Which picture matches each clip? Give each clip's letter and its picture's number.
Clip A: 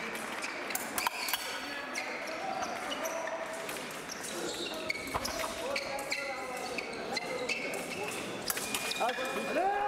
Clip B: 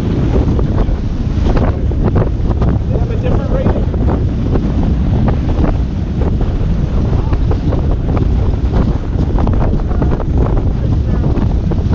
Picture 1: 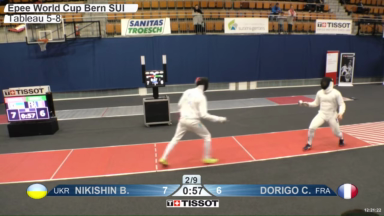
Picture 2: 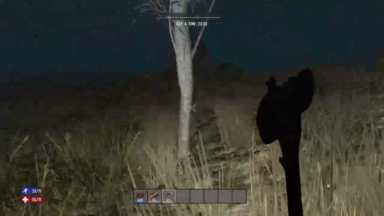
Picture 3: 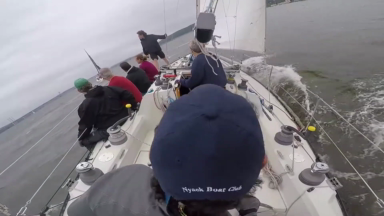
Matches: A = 1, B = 3